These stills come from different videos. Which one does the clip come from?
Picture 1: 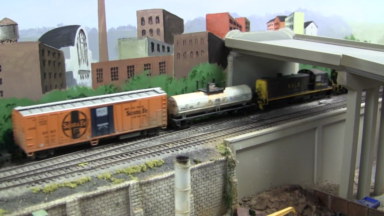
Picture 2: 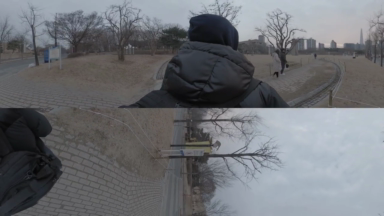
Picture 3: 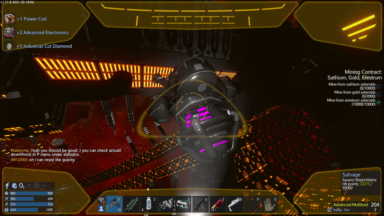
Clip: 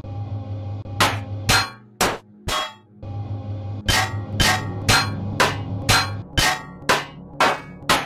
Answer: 3